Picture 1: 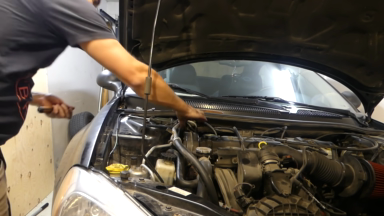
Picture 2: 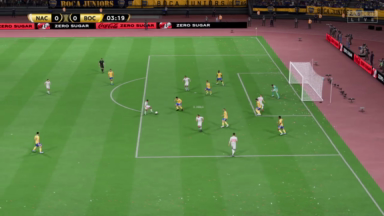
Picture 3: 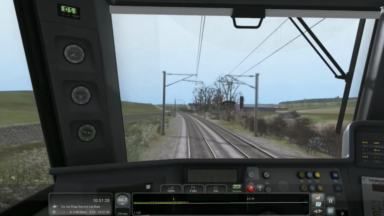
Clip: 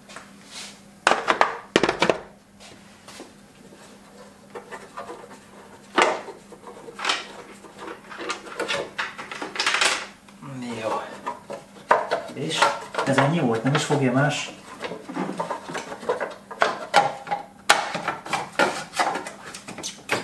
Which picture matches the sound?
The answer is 1